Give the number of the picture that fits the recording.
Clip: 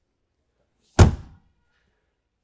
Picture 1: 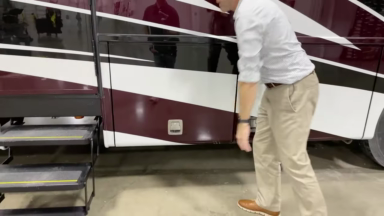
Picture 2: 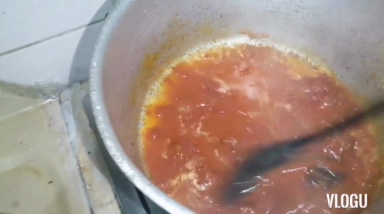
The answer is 1